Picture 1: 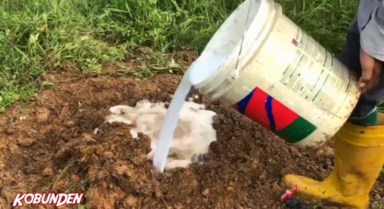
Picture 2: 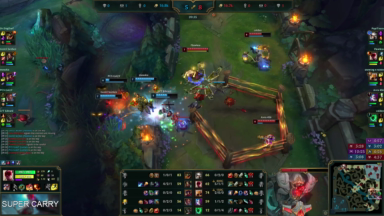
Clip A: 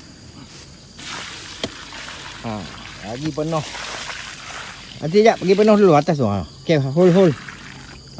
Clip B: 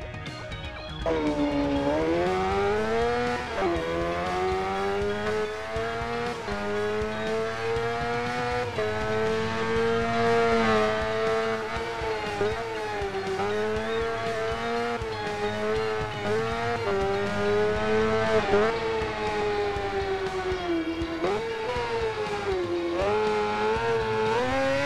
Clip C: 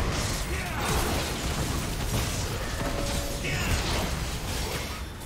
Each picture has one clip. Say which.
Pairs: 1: A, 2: C